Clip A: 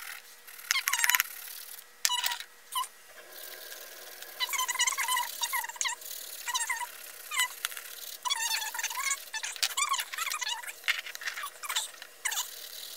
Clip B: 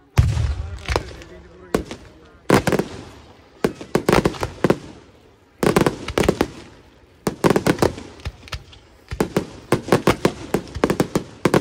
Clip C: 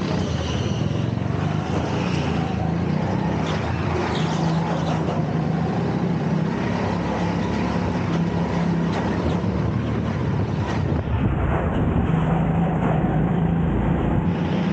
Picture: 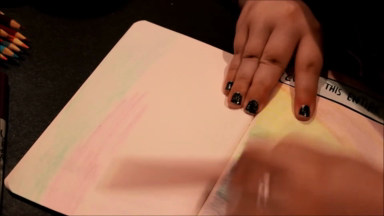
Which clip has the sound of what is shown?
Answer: A